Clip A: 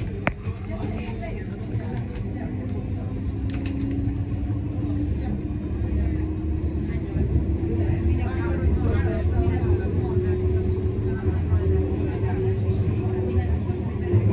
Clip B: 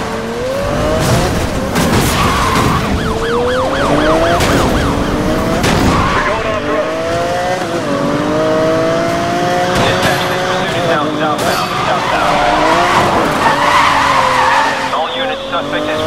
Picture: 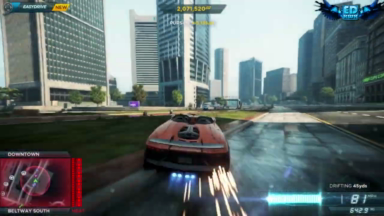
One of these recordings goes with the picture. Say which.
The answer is B